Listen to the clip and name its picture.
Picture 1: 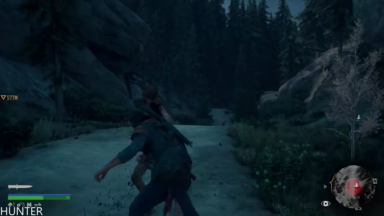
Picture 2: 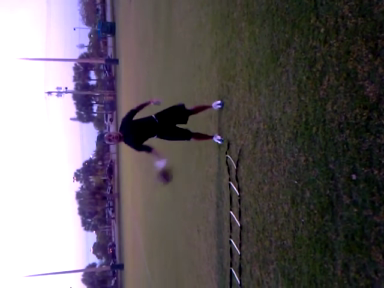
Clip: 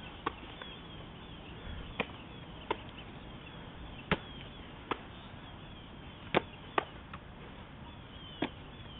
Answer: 2